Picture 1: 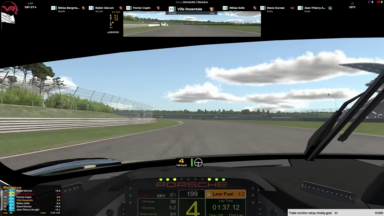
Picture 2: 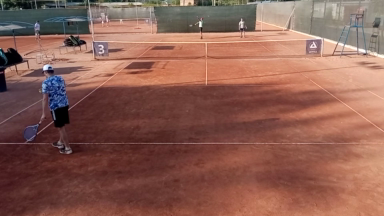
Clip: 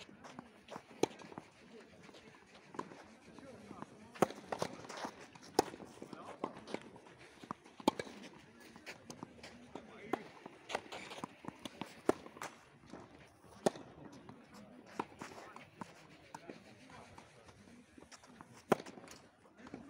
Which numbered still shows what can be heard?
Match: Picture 2